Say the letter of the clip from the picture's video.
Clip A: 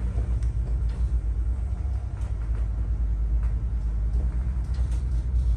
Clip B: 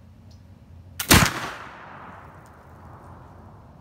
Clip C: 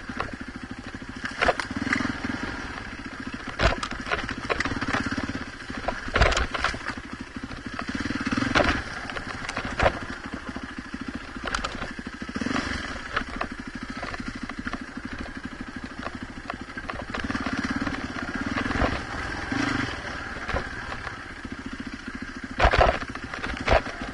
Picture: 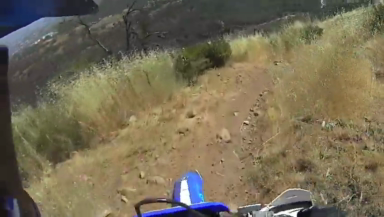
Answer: C